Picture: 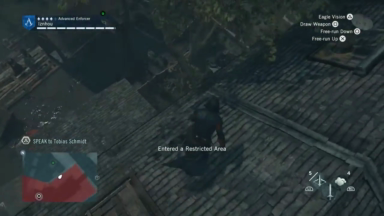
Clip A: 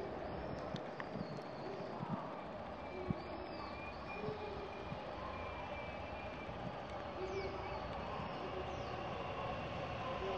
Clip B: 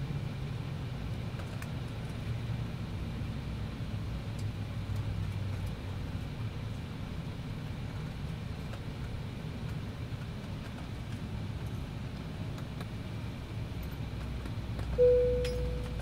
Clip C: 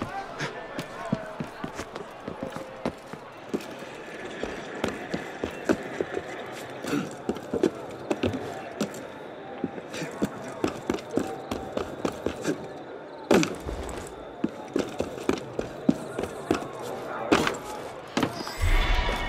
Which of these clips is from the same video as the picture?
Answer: C